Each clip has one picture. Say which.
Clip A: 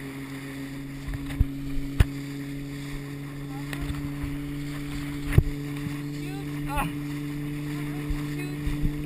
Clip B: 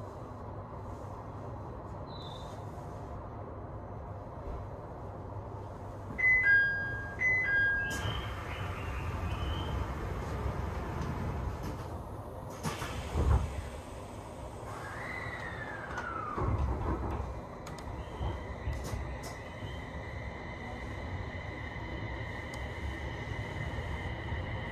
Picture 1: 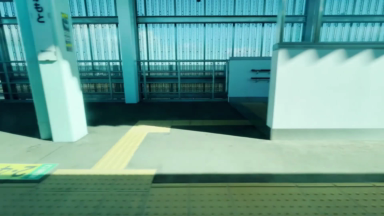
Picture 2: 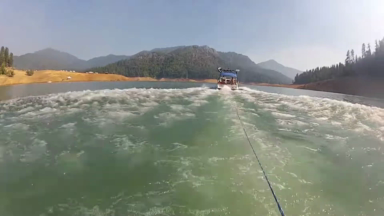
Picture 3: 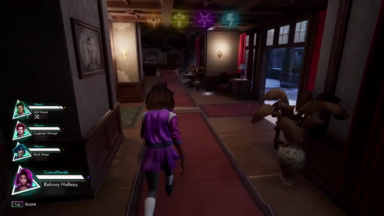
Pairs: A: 2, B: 1